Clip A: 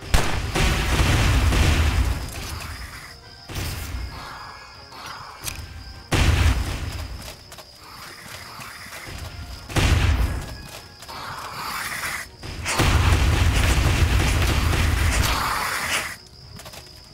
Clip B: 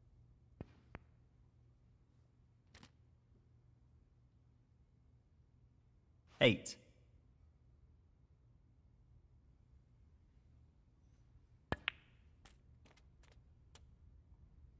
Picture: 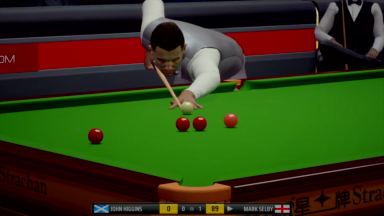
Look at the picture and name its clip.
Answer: B